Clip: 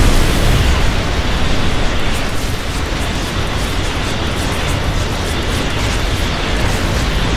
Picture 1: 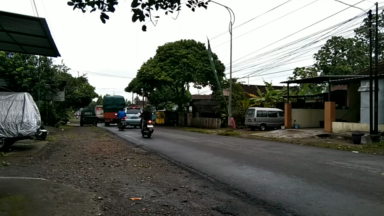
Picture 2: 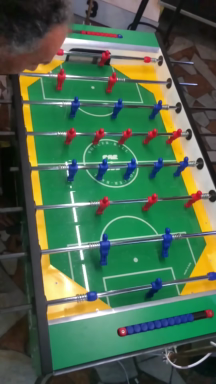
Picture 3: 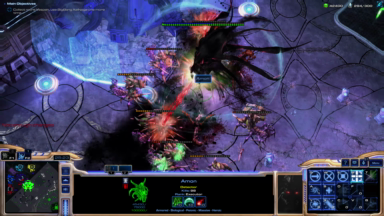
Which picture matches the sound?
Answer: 3